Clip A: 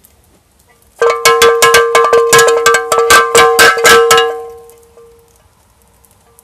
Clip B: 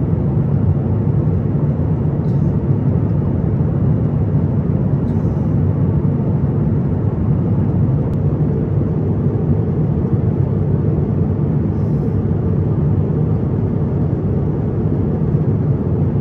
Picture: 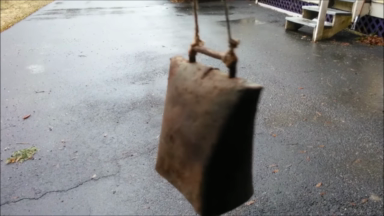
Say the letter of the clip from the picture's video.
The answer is A